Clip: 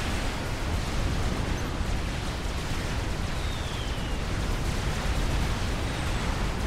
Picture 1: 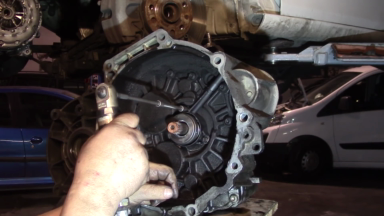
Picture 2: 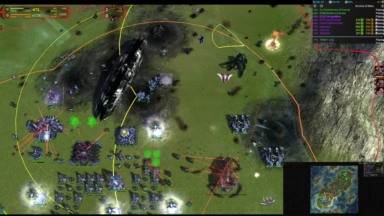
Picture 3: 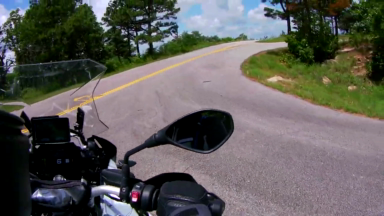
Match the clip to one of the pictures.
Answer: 2